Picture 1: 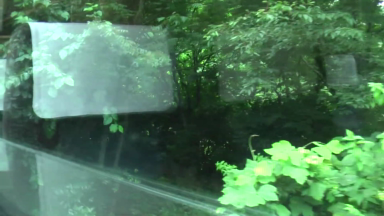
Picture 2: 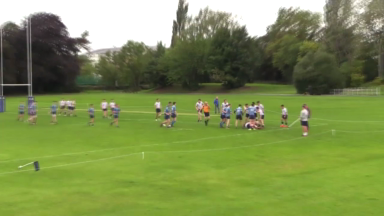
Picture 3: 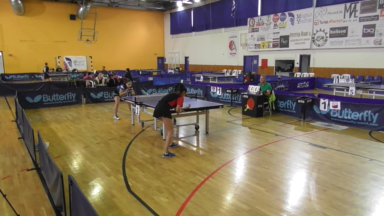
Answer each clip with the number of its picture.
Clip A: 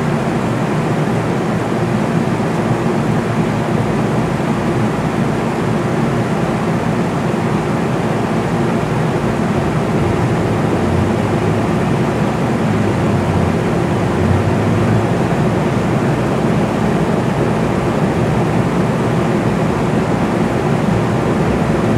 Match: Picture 1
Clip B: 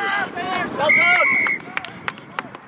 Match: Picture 2